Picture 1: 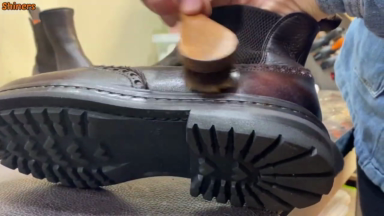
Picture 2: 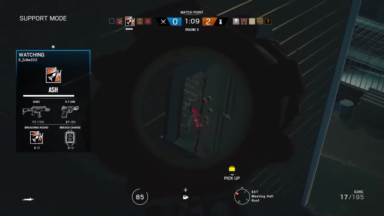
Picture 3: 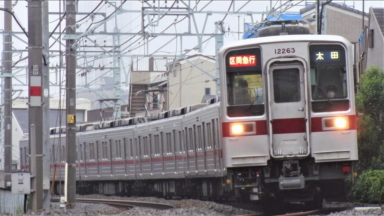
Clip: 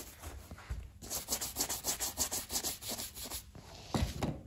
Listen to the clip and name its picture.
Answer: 1